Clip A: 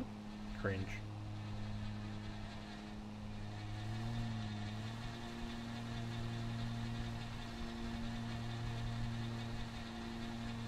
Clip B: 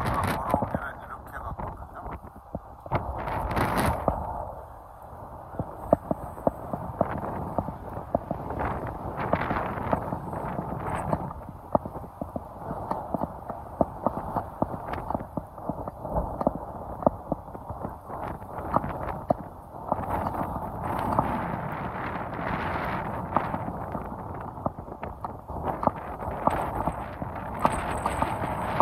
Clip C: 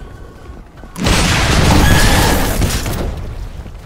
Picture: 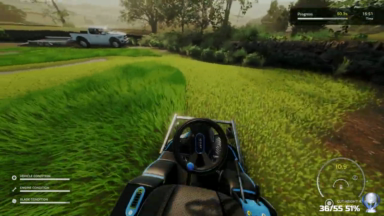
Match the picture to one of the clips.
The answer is A